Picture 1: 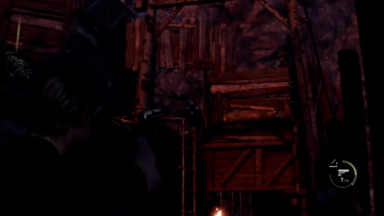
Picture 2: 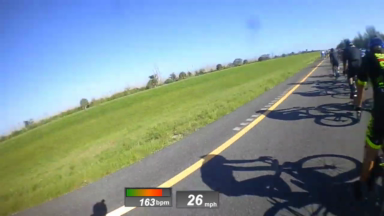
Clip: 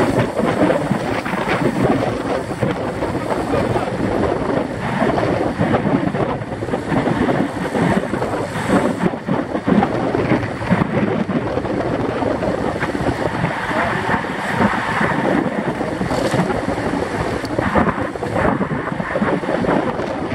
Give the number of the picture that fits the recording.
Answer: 2